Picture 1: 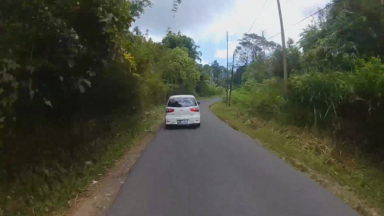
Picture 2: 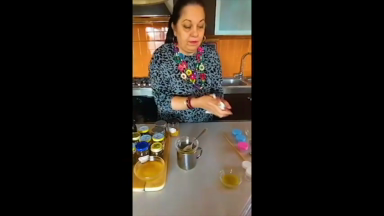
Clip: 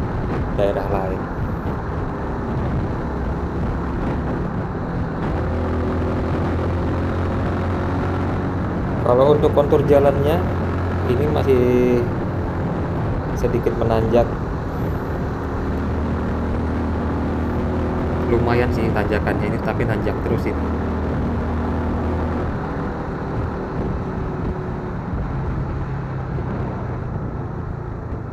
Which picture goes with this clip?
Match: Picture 1